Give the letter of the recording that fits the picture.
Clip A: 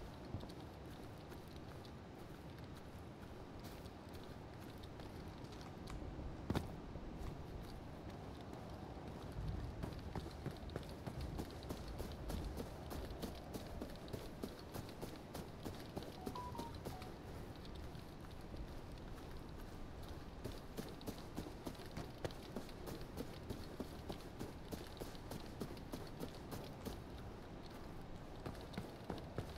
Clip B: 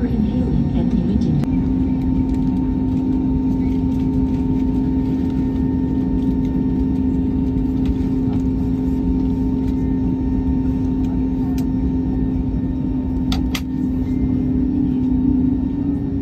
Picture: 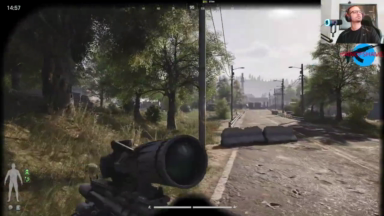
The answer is A